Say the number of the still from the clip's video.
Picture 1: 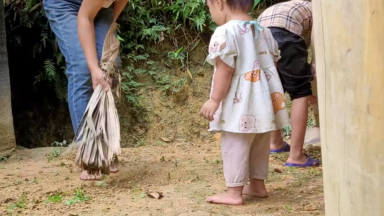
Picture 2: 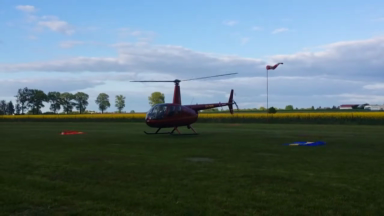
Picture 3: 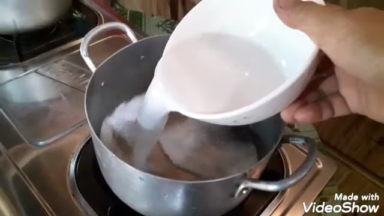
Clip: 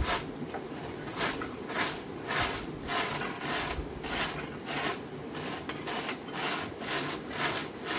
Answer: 1